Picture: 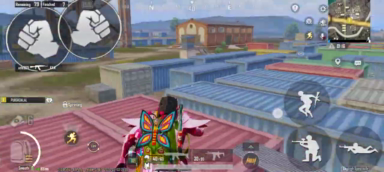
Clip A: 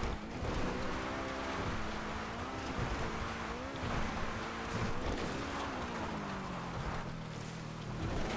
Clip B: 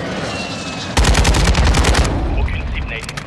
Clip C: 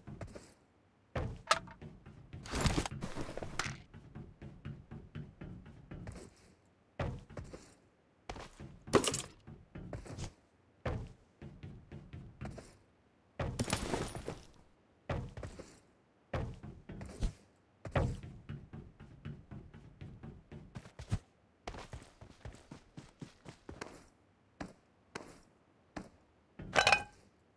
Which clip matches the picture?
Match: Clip C